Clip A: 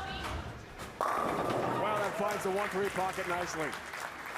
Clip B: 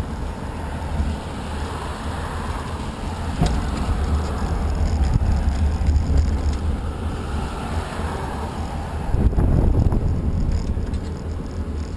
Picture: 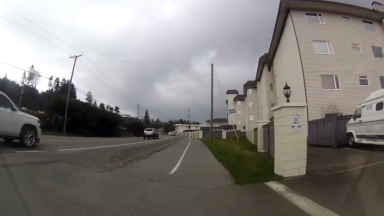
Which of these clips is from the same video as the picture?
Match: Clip B